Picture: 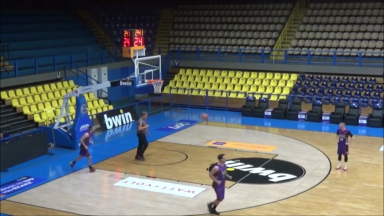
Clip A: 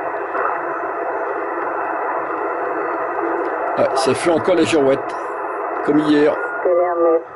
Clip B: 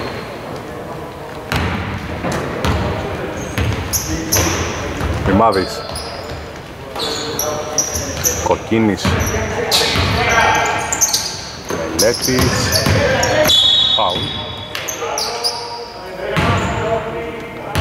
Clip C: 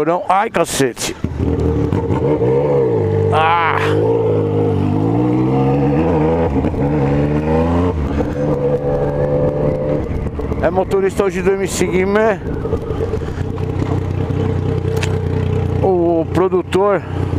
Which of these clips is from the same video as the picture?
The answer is B